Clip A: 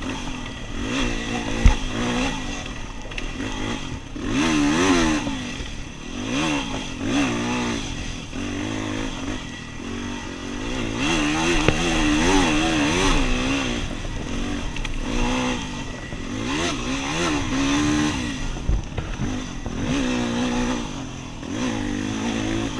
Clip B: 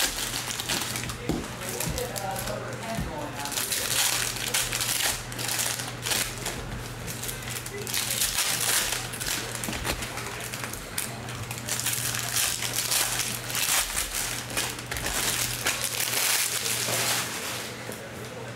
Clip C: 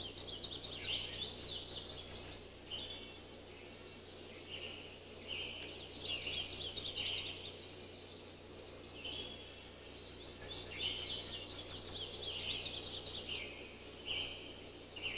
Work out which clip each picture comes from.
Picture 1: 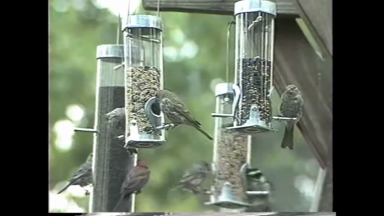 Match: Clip C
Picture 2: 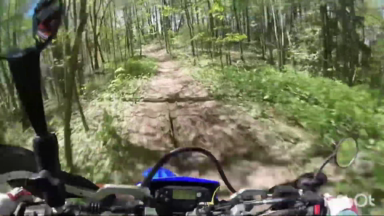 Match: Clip A